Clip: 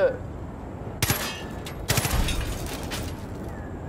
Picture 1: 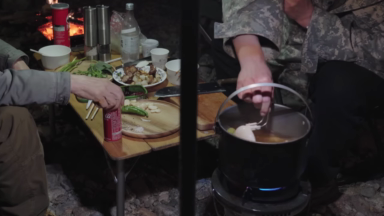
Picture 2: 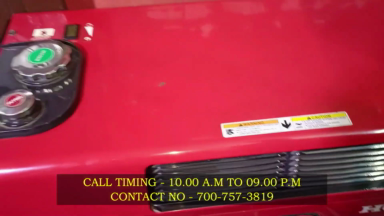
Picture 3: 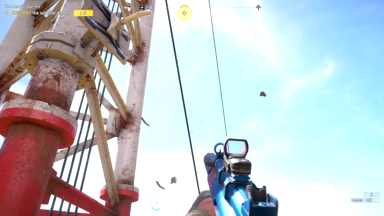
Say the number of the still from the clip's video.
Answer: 3